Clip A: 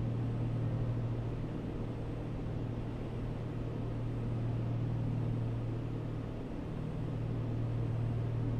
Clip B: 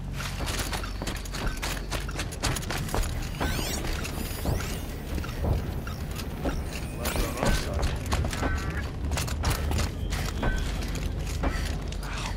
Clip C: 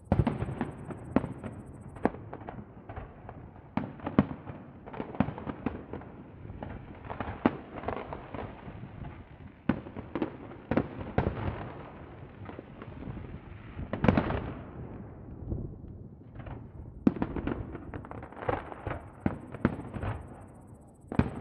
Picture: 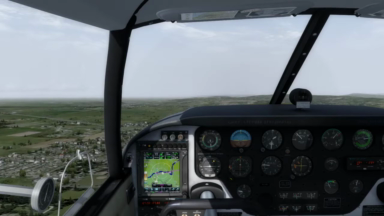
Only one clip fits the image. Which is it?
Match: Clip A